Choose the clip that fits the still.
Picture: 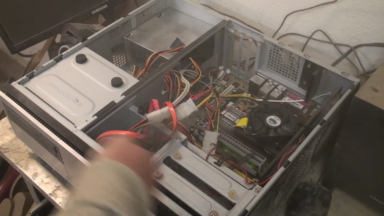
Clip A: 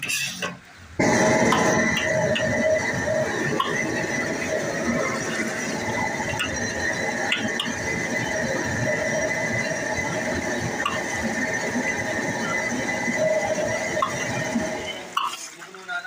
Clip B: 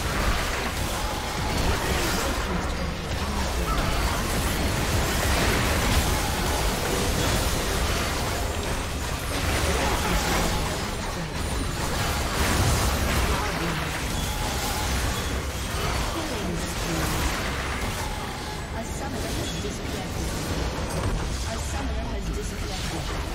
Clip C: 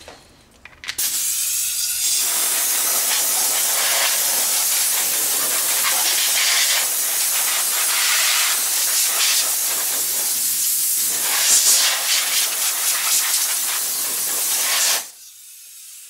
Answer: C